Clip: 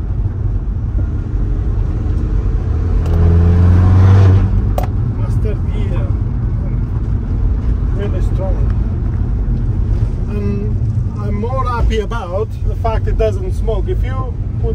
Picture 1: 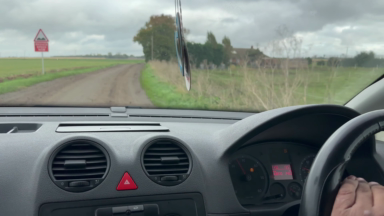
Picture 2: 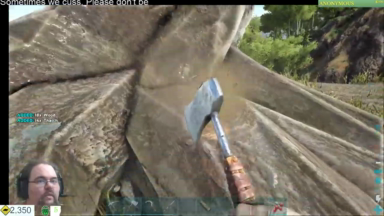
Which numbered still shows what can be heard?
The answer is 1